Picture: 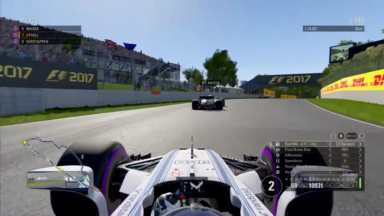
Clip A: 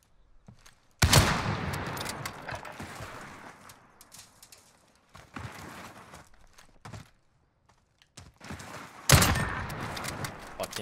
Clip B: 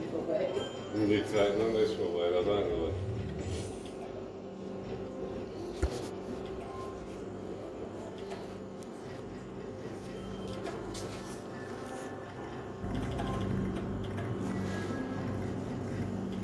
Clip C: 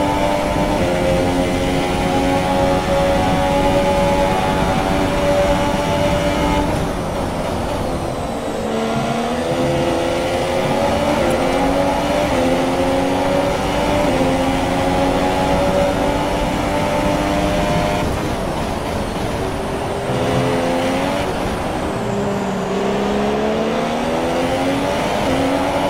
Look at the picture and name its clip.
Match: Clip C